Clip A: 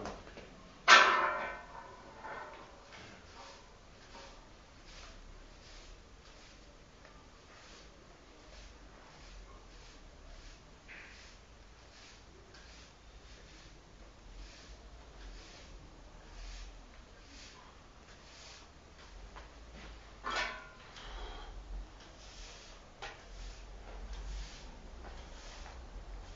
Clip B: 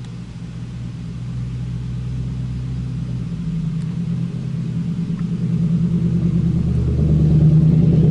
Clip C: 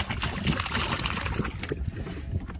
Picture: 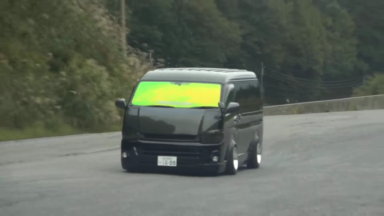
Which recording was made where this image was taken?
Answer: B